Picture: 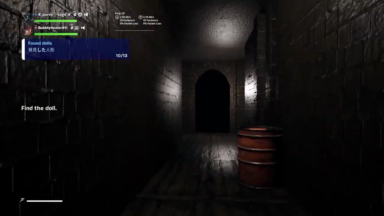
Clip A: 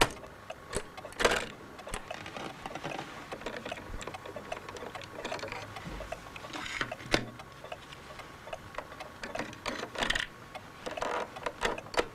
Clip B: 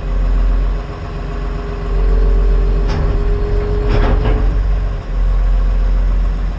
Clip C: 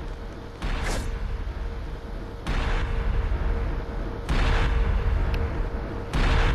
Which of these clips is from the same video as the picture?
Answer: C